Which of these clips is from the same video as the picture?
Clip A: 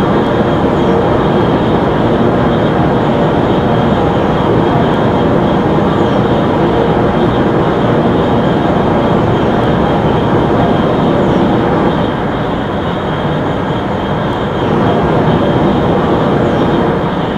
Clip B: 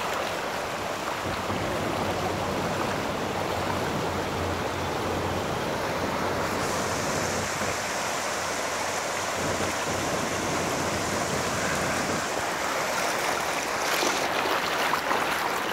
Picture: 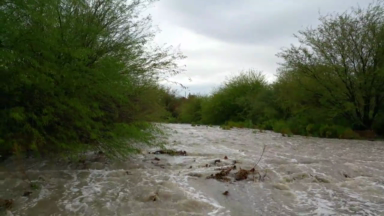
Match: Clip B